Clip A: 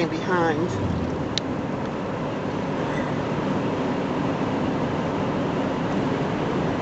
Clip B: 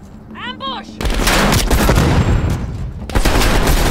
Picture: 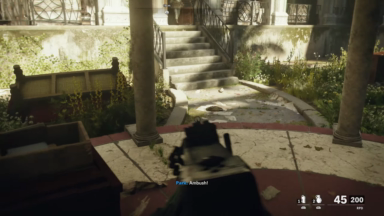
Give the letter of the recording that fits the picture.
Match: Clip B